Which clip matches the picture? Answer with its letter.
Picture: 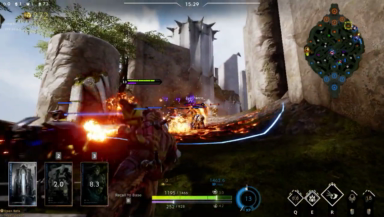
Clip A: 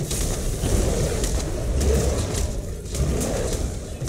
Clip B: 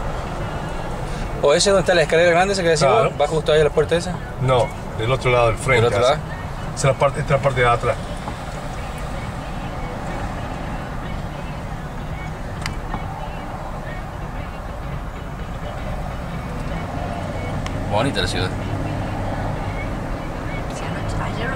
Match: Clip A